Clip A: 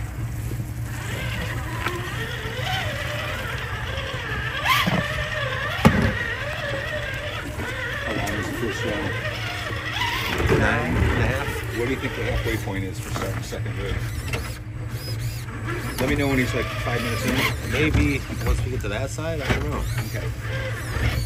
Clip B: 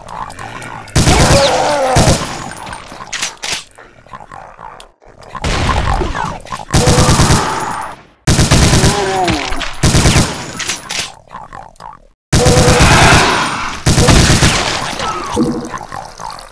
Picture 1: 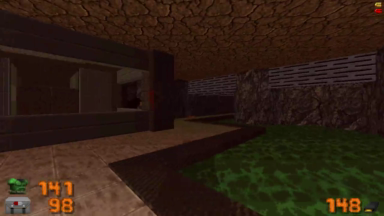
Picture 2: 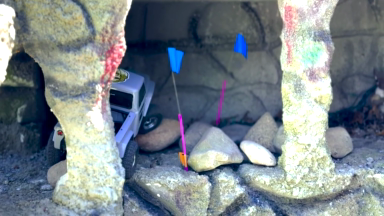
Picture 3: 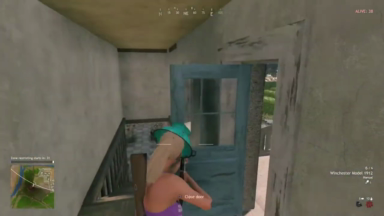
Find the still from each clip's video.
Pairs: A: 2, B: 1